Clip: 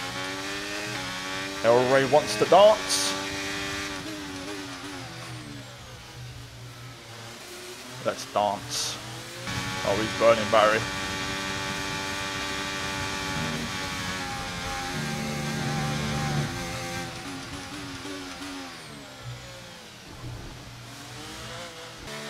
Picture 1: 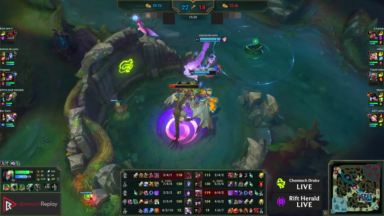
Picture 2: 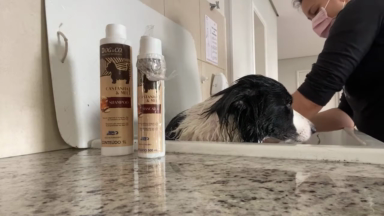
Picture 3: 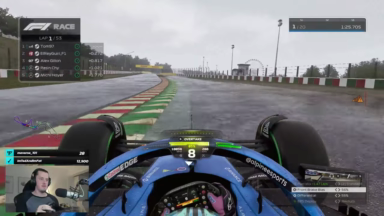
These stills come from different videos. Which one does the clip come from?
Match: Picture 3